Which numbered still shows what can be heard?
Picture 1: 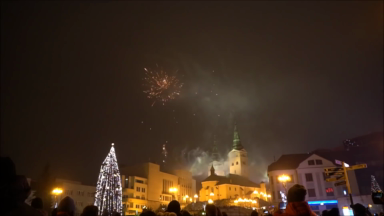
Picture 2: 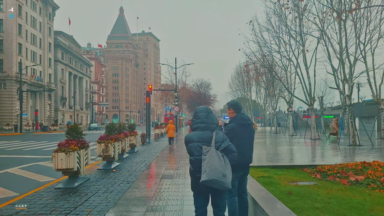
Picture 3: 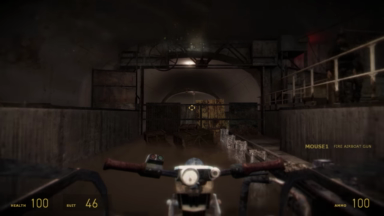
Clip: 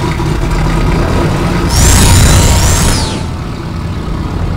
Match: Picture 3